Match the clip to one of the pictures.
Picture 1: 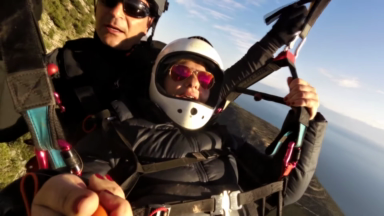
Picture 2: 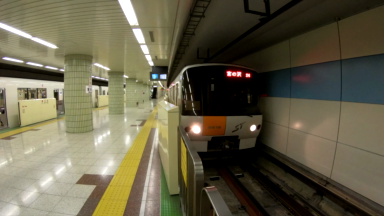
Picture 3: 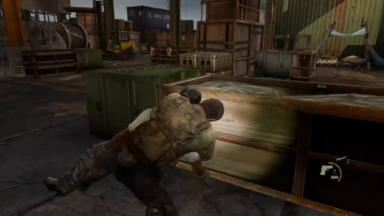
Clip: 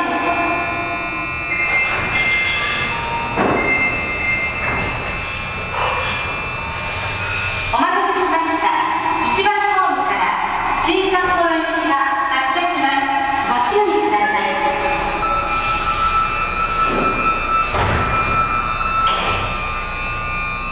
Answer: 2